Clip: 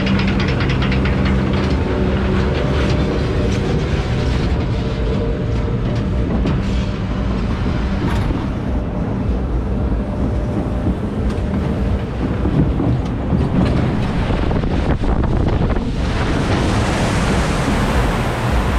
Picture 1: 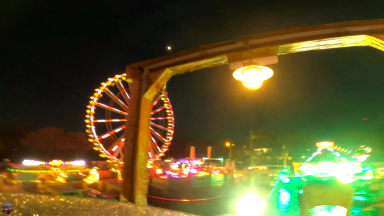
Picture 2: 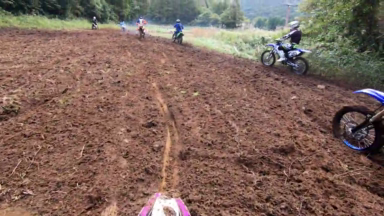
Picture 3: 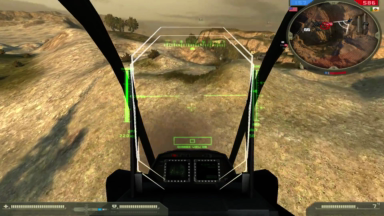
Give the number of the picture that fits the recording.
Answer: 1